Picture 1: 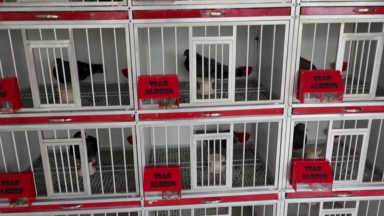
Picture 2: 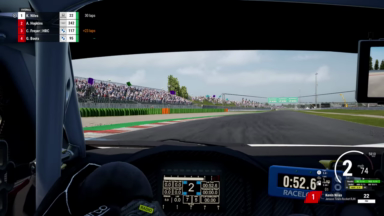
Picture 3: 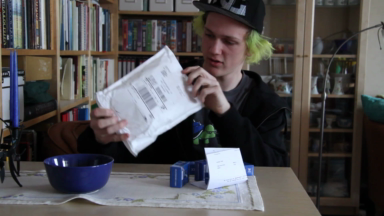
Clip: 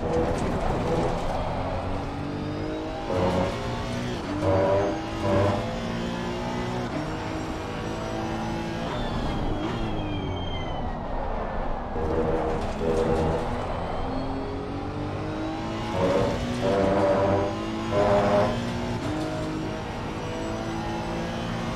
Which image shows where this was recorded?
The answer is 2